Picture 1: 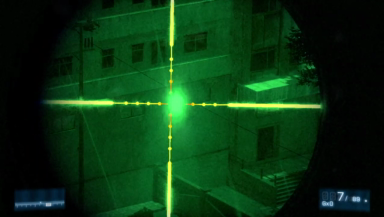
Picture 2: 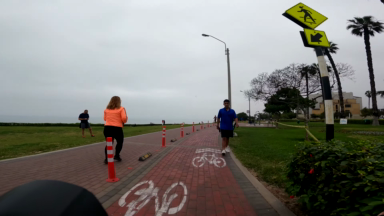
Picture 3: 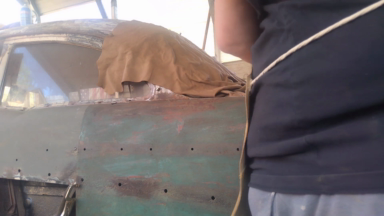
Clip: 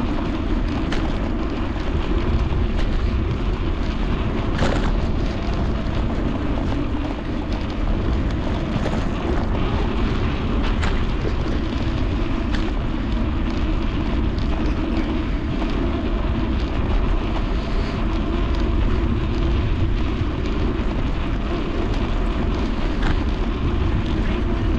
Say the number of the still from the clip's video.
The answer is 2